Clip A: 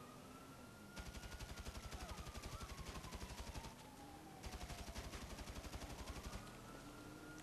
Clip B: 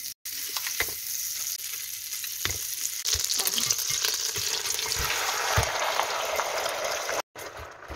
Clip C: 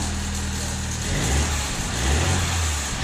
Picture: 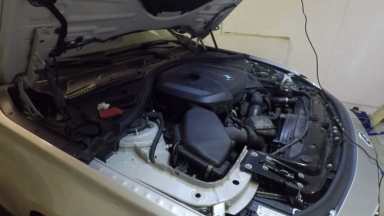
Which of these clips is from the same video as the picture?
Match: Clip C